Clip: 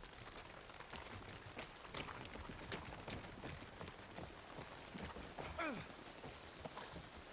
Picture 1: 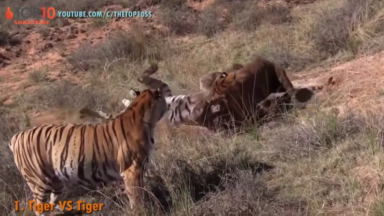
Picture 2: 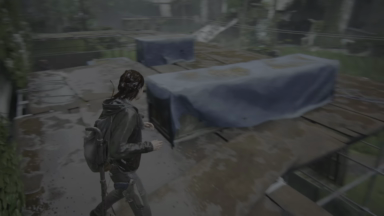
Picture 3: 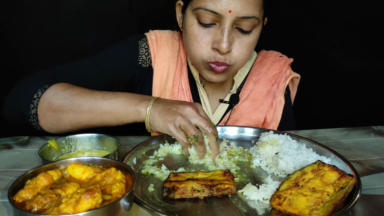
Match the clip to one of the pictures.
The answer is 2